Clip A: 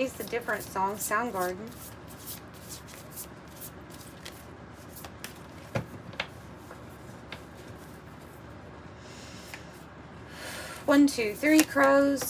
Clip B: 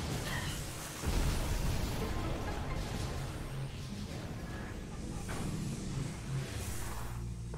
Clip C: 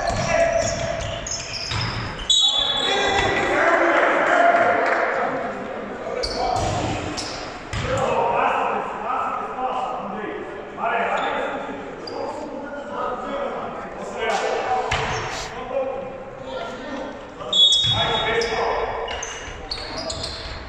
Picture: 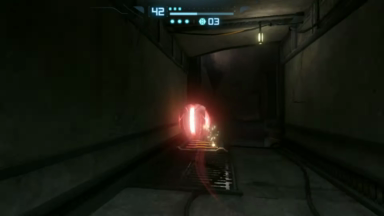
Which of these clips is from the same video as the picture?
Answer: B